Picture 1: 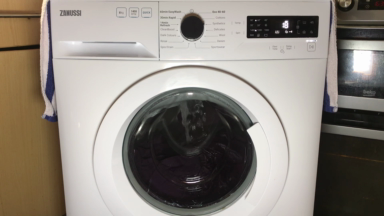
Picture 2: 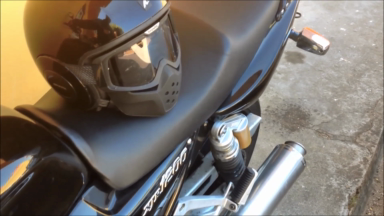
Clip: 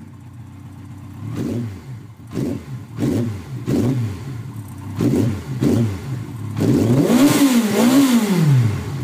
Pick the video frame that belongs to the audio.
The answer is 2